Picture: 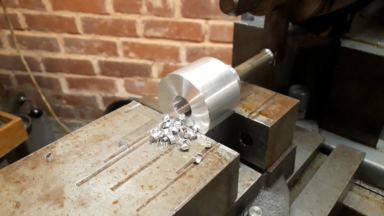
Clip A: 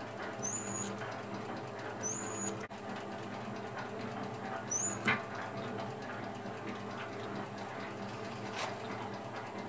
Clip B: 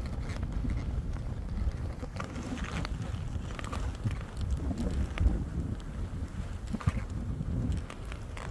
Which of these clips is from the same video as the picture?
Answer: A